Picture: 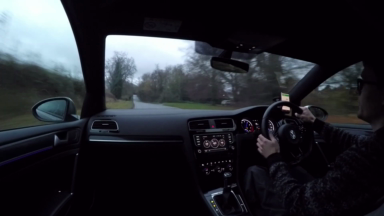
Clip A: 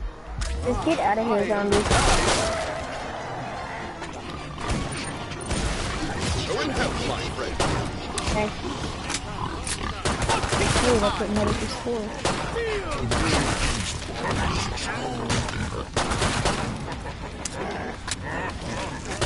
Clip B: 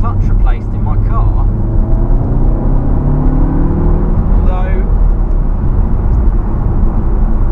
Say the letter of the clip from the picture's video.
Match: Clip B